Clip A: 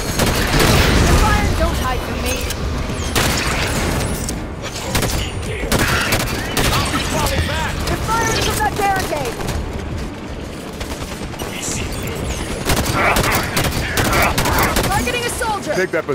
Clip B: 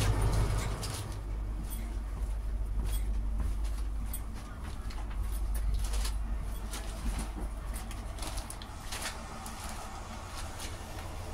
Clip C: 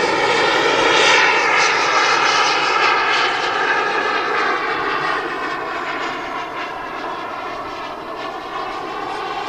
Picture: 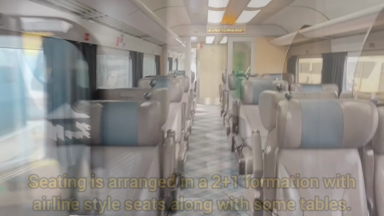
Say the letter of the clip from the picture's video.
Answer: B